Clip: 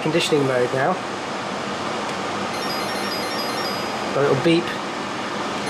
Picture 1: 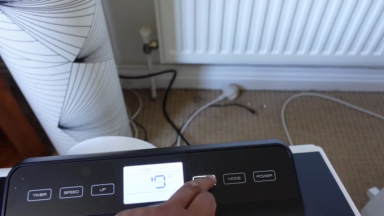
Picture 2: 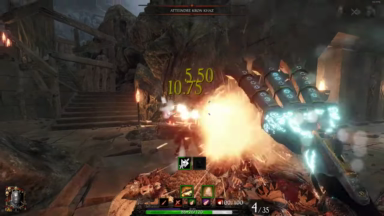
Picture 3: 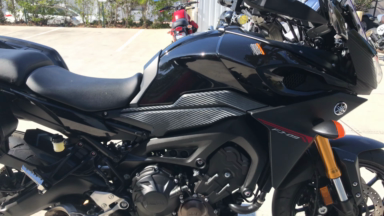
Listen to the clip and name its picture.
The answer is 1